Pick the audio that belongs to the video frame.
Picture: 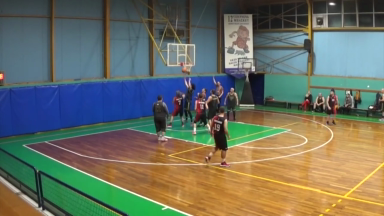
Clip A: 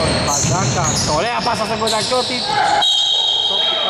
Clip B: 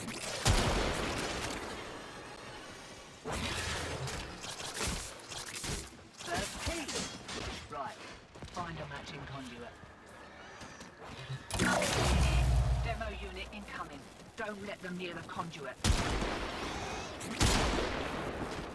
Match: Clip A